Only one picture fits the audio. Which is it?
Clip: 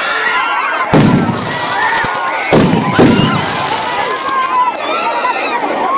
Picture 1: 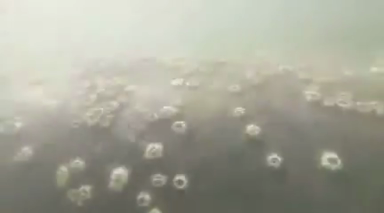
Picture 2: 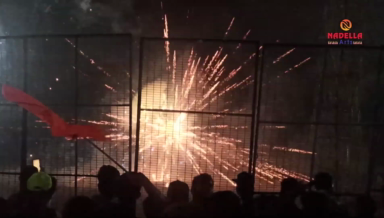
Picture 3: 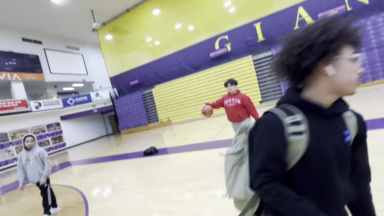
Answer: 2